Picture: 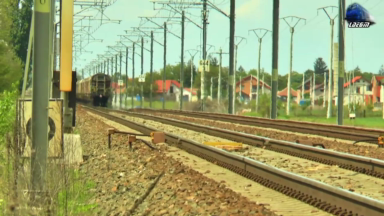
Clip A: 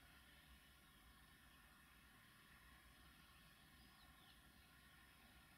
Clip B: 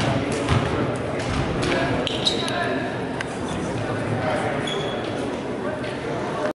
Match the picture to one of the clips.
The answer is A